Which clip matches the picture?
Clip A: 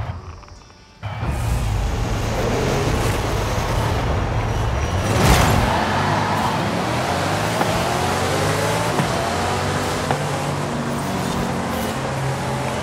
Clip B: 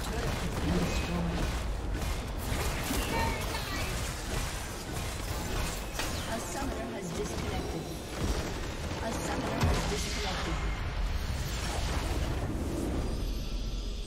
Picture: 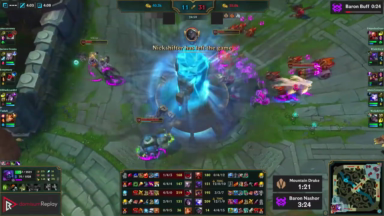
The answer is B